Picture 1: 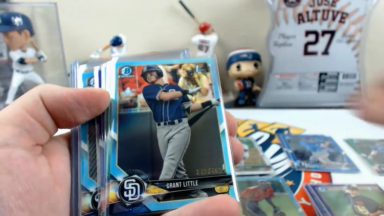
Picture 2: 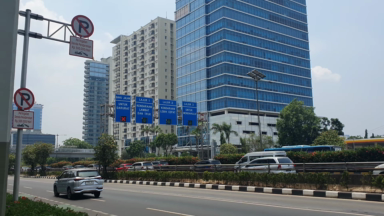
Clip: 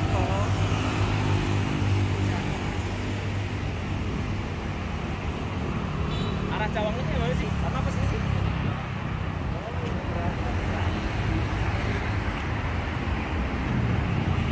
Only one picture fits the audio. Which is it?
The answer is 2